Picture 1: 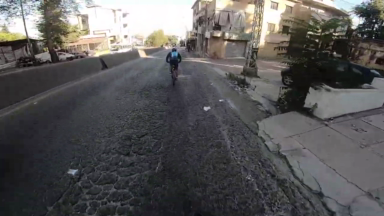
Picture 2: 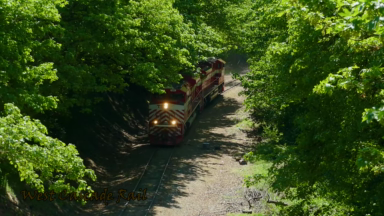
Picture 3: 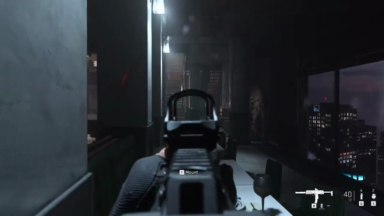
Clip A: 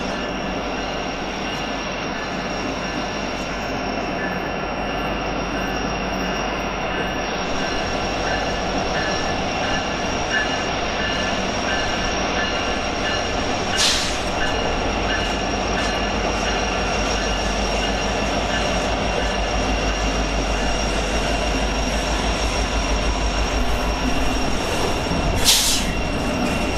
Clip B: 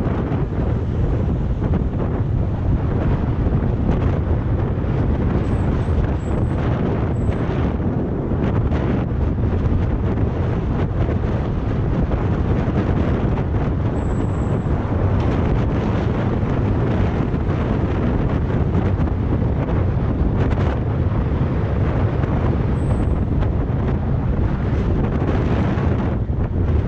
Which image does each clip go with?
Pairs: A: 2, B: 1